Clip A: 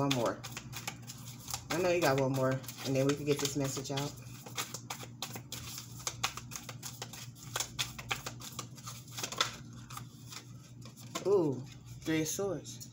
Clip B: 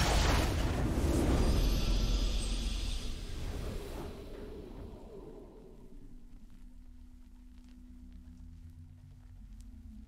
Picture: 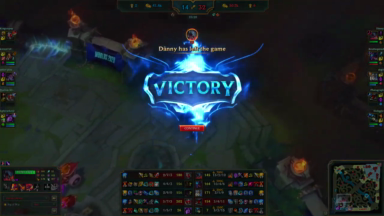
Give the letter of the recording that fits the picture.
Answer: B